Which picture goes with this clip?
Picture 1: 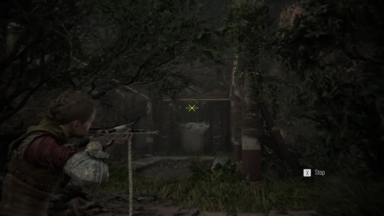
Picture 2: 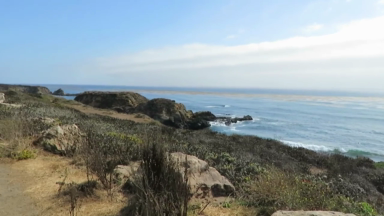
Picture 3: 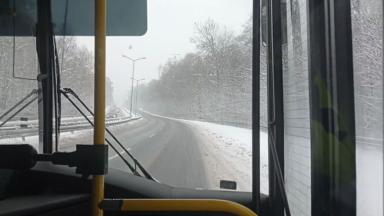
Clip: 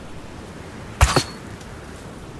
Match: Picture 1